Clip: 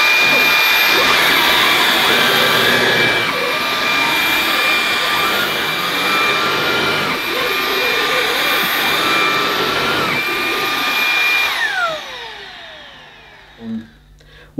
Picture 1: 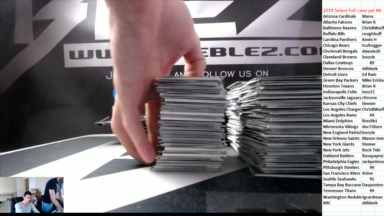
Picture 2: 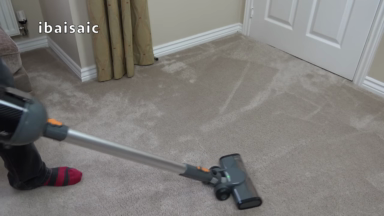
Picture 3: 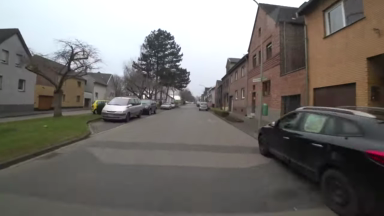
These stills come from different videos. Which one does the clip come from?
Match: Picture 2